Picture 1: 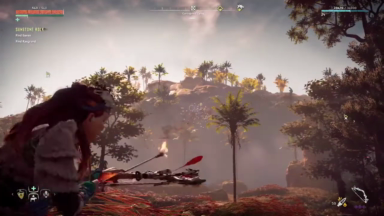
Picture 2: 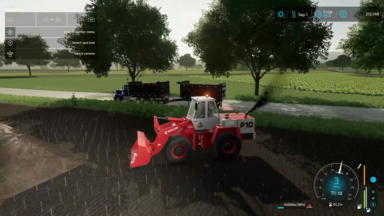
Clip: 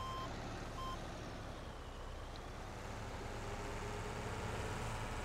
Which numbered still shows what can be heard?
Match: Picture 2